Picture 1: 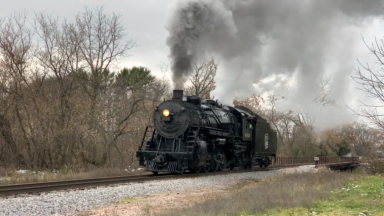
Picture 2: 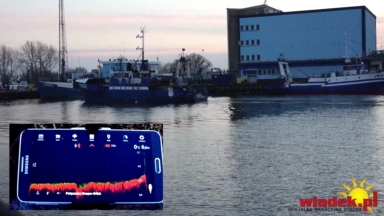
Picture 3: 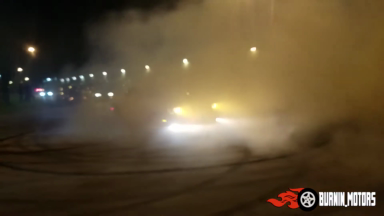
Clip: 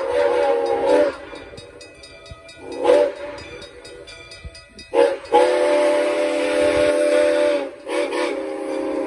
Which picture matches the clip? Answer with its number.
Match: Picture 1